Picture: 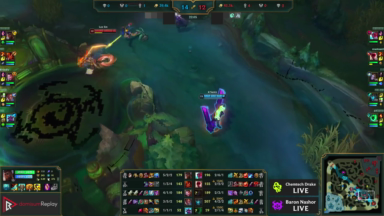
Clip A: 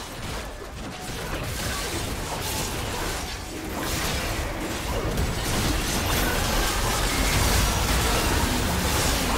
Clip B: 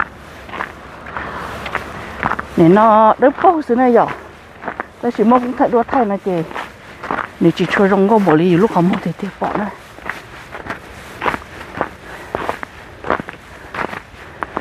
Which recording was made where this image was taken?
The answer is A